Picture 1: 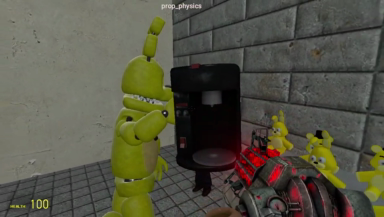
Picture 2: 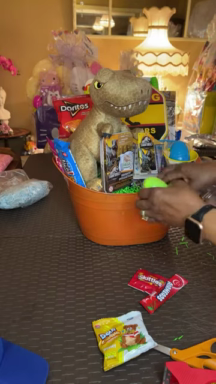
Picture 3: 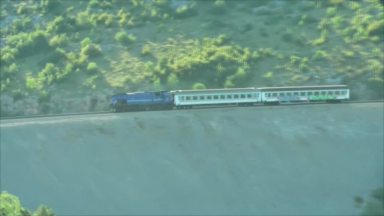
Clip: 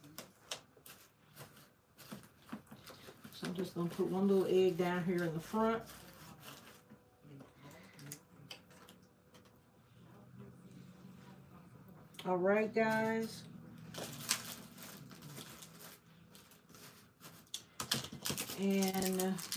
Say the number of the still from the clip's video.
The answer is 2